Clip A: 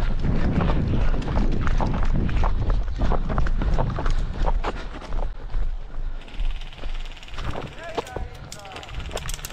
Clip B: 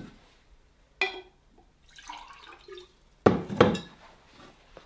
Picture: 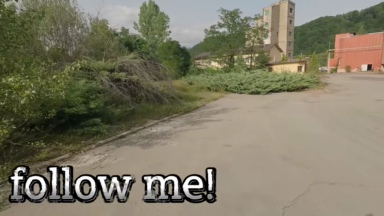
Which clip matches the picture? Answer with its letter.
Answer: A